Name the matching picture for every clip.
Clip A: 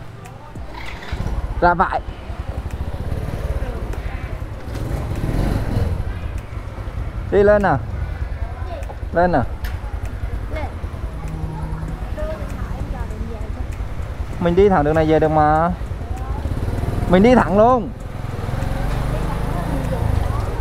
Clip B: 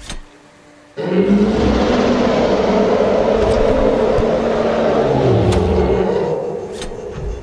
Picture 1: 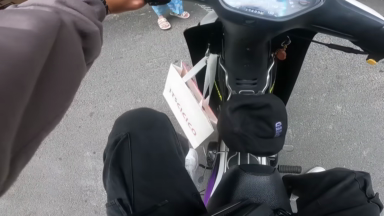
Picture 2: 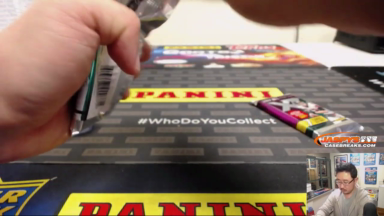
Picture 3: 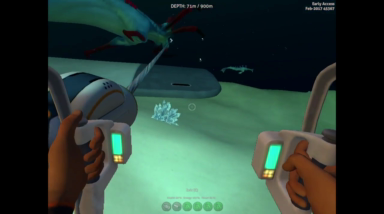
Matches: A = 1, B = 3